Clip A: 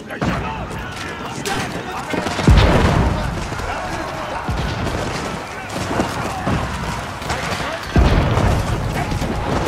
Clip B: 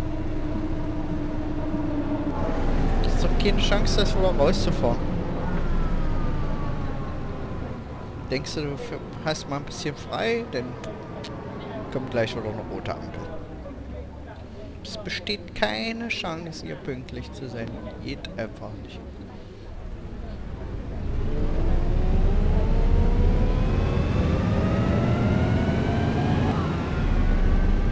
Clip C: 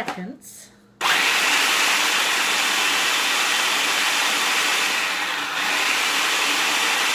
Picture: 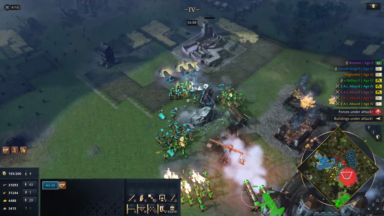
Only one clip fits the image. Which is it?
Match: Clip A